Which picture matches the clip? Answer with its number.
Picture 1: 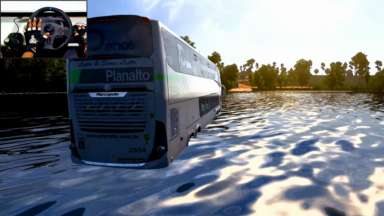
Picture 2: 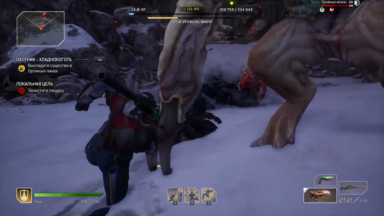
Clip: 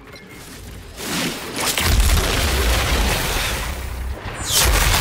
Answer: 2